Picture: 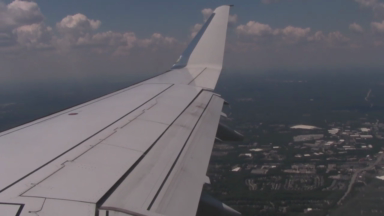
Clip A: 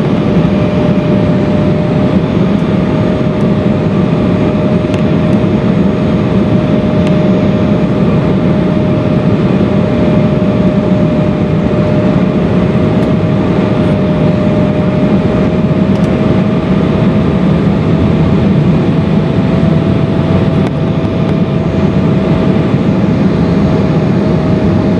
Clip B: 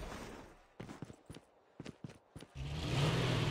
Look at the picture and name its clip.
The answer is A